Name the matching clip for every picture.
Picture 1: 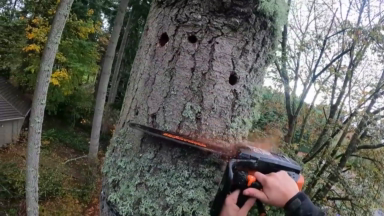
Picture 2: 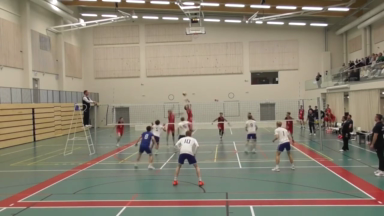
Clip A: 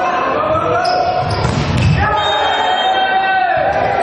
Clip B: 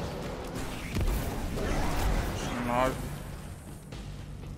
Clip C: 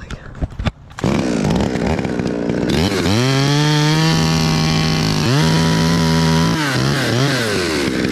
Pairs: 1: C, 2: A